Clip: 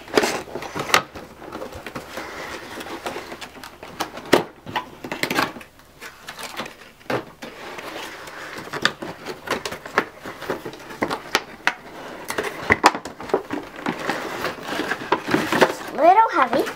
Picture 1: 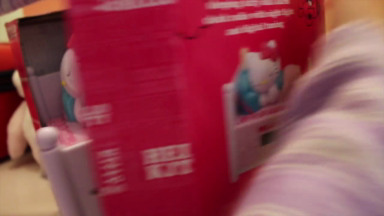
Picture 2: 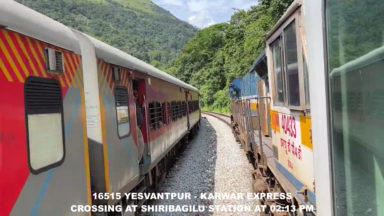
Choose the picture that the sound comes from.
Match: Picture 1